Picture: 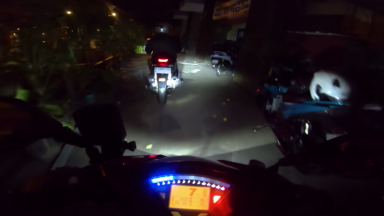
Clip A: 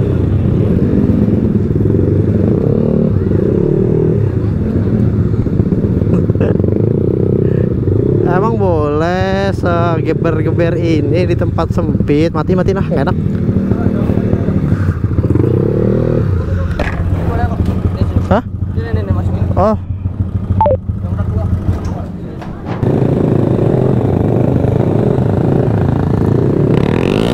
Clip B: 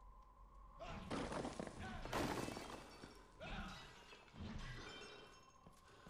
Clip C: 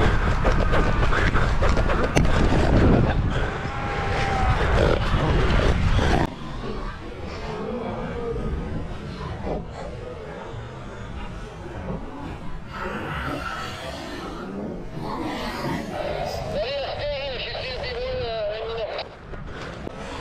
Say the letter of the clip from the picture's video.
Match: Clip A